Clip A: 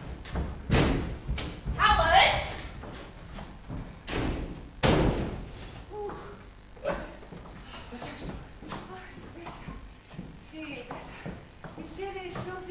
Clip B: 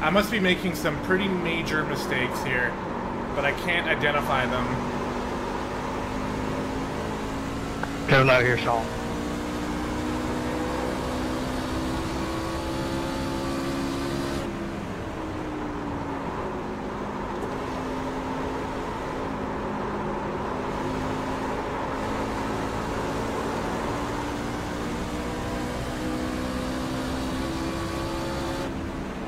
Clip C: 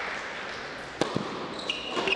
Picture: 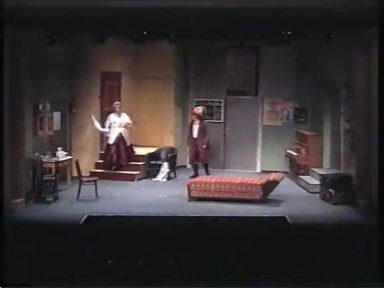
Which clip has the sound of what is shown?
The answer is A